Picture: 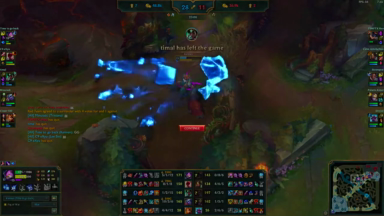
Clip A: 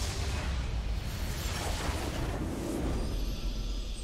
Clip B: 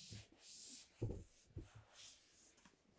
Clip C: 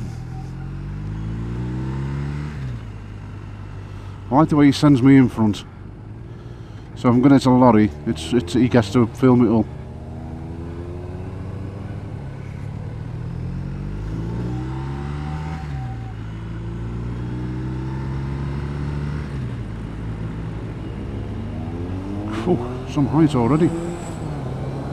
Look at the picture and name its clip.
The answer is A